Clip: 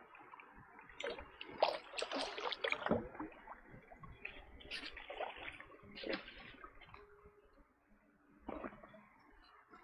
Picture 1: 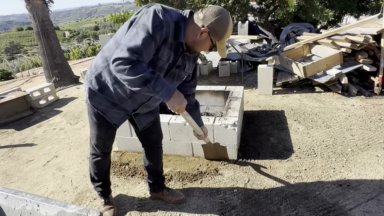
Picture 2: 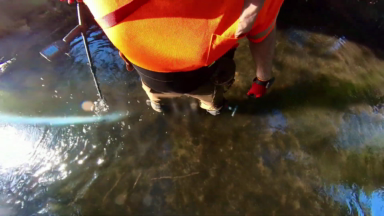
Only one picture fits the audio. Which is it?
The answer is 2